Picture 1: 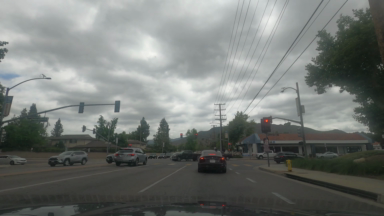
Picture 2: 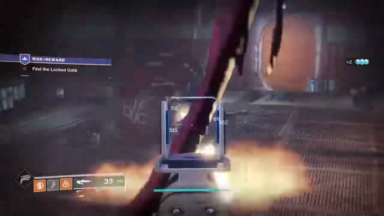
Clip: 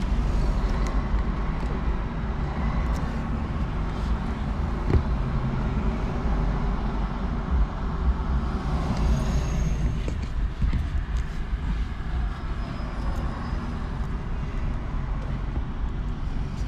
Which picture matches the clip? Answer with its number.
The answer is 1